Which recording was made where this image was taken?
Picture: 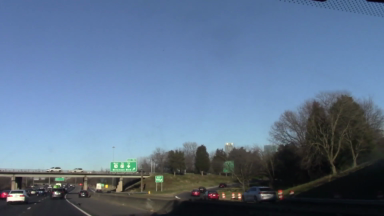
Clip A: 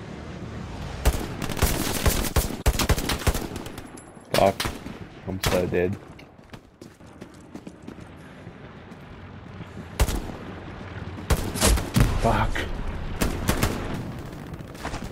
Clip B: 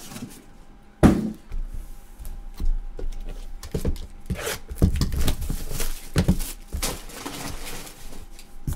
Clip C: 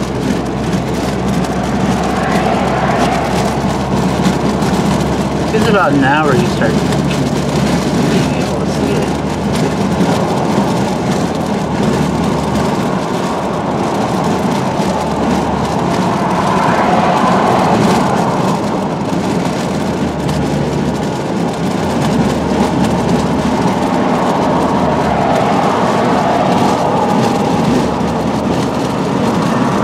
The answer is C